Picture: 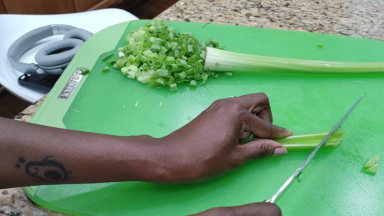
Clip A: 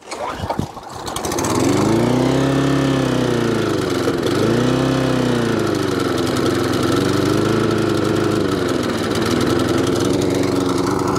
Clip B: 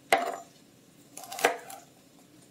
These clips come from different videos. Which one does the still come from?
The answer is B